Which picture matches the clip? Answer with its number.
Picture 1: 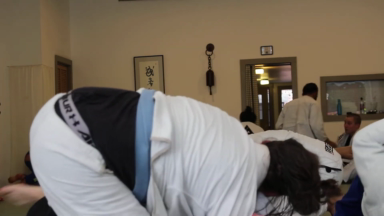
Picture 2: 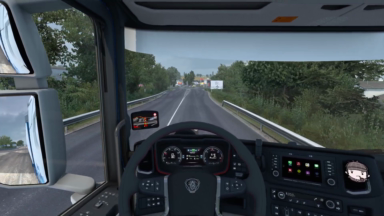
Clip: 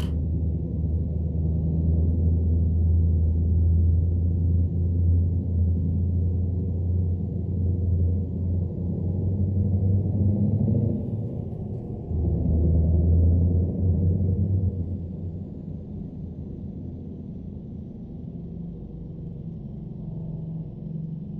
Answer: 2